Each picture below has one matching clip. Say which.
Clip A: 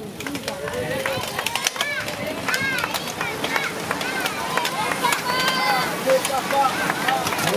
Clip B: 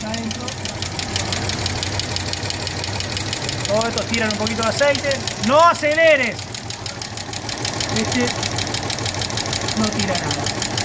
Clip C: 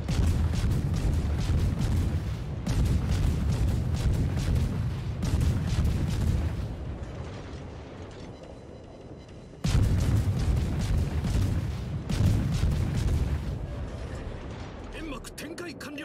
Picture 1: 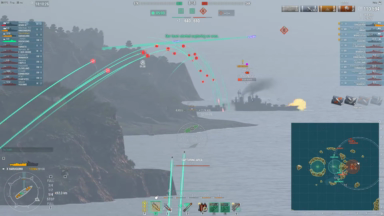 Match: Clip C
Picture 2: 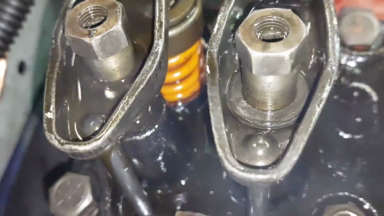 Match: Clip B